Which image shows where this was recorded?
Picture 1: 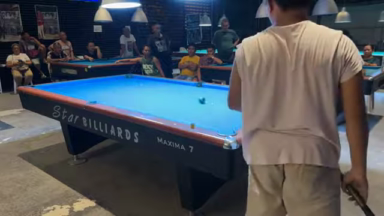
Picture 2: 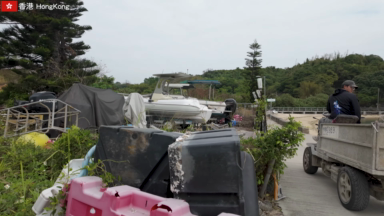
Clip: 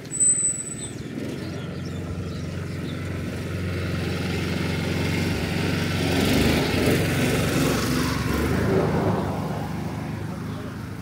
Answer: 2